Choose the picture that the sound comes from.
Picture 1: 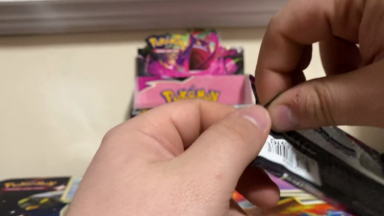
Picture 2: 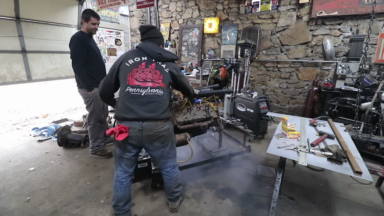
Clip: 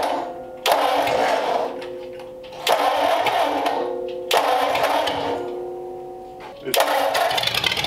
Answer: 2